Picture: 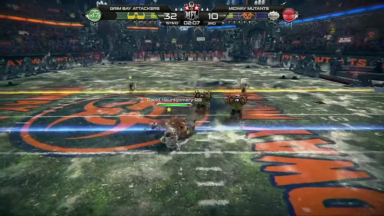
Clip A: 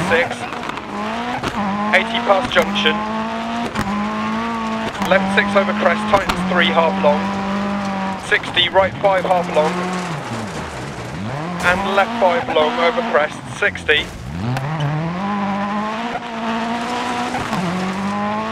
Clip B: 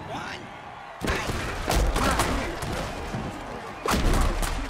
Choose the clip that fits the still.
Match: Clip B